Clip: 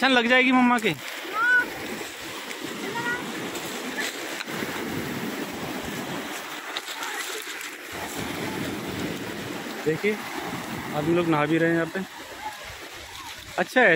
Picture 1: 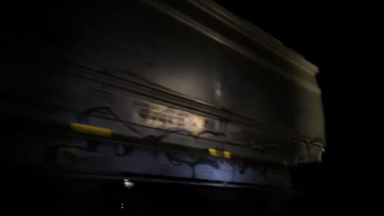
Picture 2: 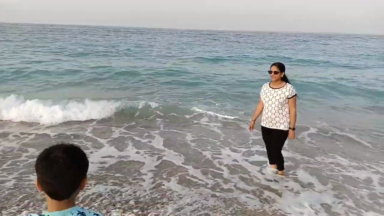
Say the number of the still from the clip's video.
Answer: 2